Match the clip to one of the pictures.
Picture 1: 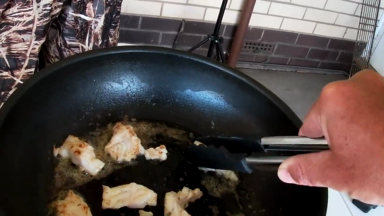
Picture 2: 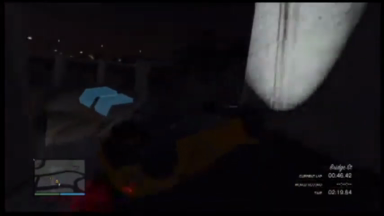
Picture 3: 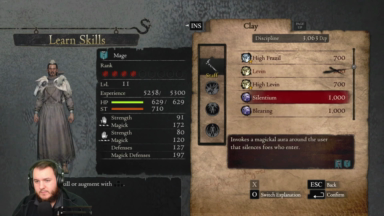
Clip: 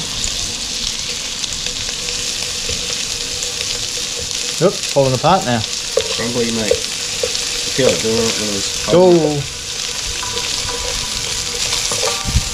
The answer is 1